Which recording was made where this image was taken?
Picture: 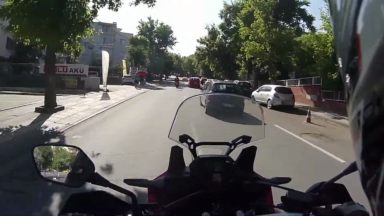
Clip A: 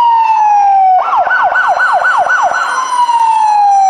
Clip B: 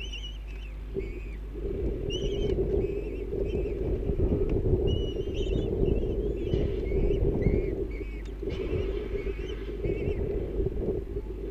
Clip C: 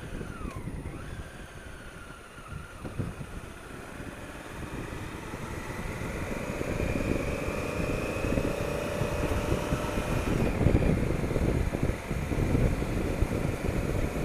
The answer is C